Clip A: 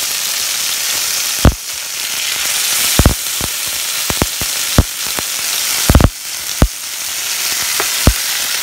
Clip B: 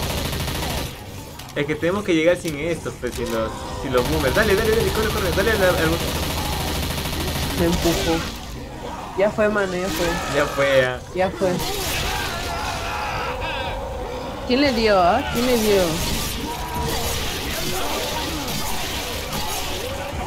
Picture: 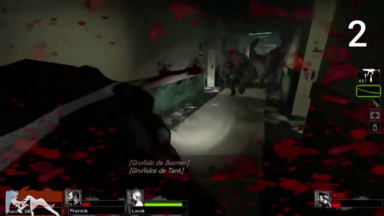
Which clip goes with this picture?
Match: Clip B